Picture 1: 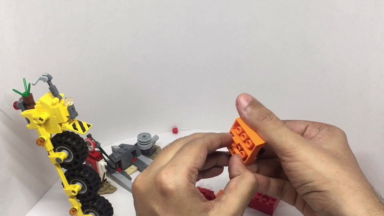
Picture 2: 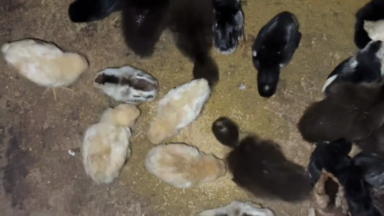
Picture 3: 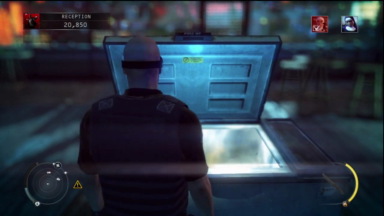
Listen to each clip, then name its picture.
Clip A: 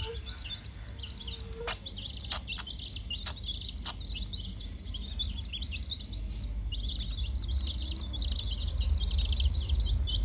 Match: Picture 2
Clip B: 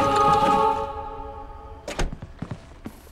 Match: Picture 3